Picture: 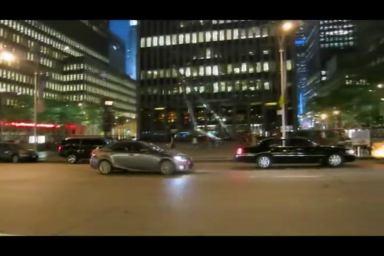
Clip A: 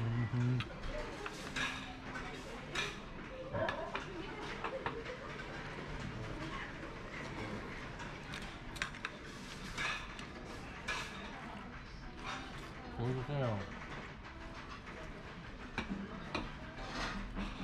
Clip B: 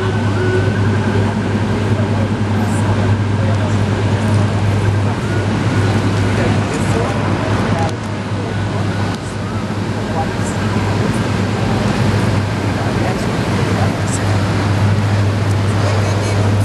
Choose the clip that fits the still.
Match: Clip B